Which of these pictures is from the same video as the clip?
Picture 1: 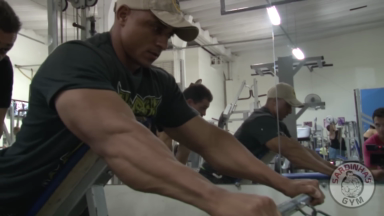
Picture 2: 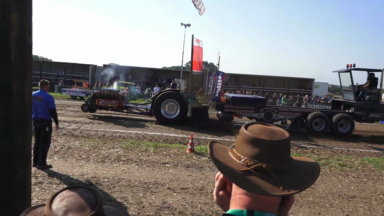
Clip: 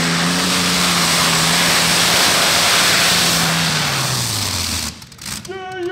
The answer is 2